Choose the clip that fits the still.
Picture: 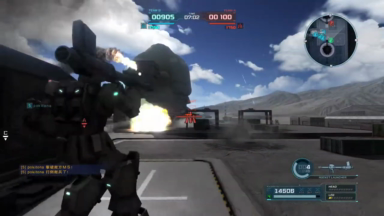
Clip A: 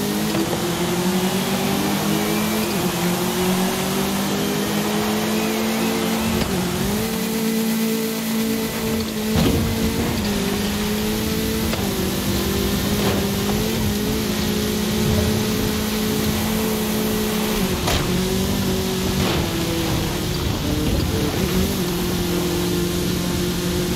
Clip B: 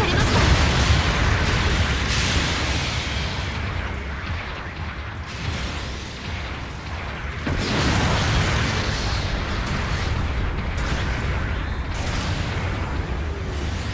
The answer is B